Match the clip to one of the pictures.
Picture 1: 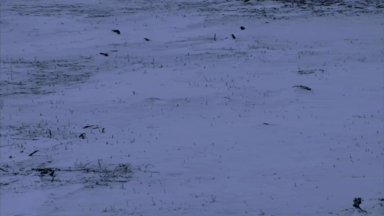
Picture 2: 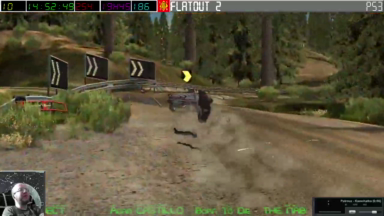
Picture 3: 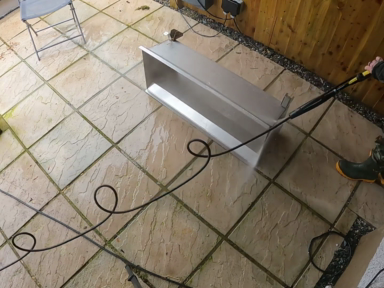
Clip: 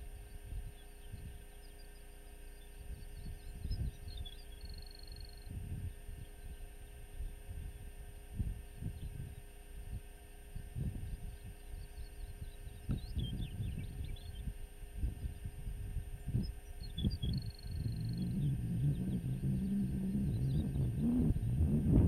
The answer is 1